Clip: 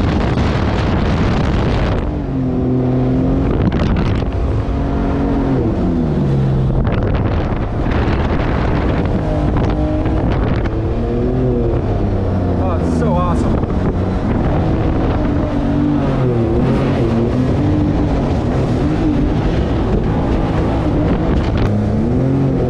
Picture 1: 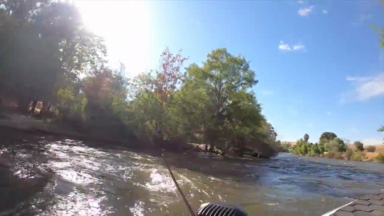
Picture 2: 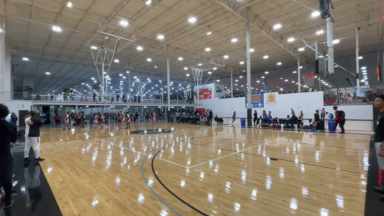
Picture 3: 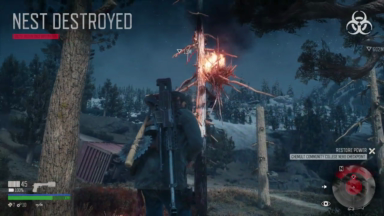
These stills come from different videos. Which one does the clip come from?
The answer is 1